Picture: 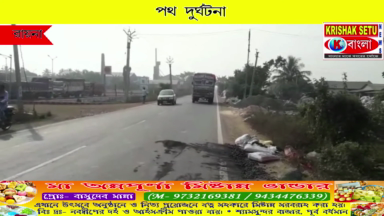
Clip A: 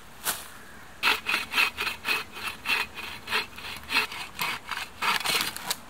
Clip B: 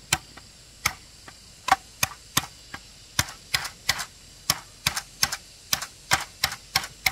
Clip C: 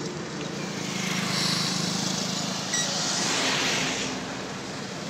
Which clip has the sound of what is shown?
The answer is C